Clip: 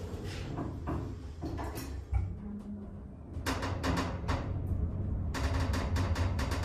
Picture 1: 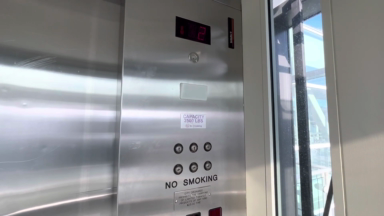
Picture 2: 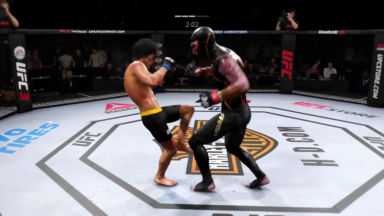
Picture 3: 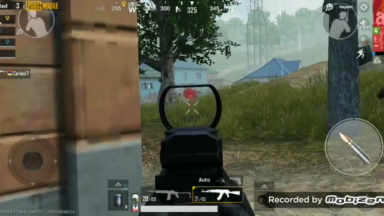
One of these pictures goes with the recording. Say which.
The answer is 1